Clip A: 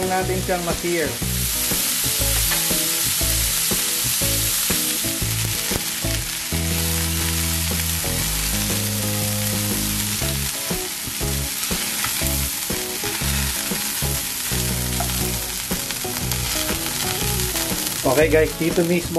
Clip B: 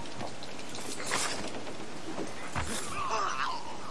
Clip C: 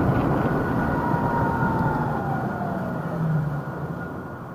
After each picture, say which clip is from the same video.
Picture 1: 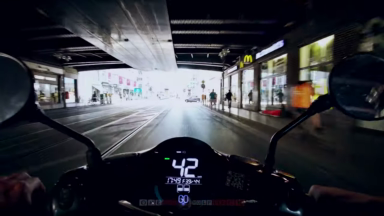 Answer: C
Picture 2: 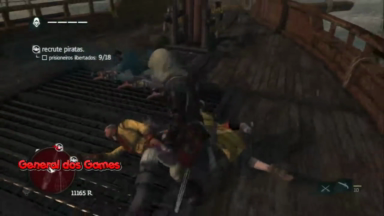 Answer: B